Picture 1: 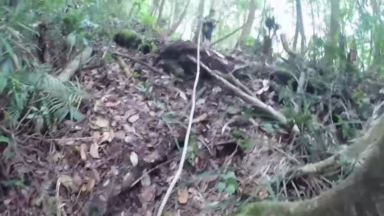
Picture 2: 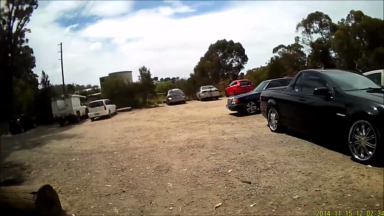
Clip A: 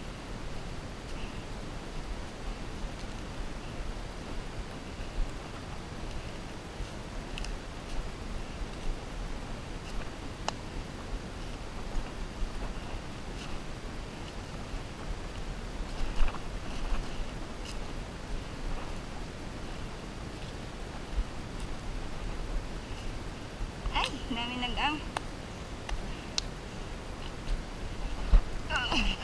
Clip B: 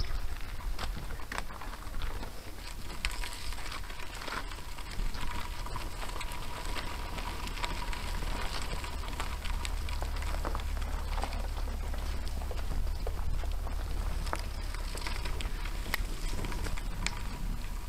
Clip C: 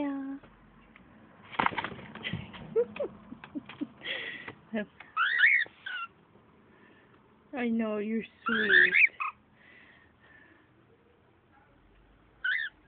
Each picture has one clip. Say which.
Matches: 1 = A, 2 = B